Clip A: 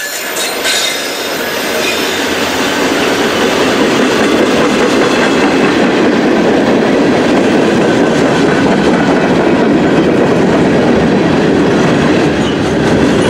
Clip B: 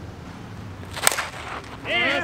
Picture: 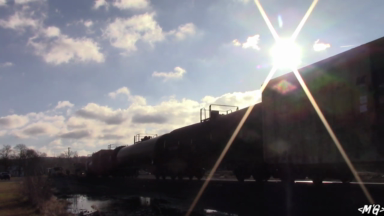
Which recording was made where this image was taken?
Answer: A